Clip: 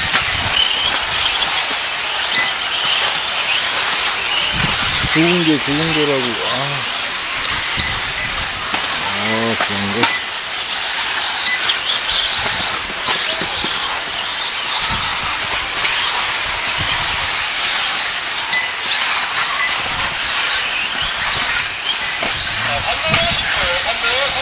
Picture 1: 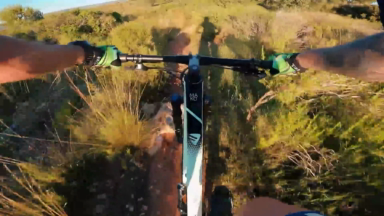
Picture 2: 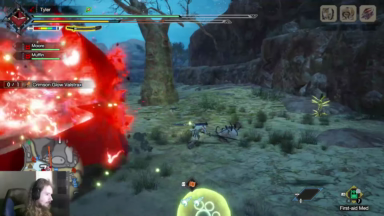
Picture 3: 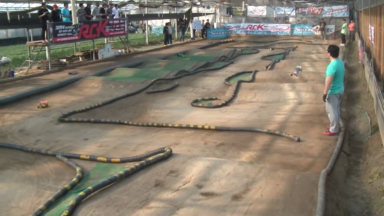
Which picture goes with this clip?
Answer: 3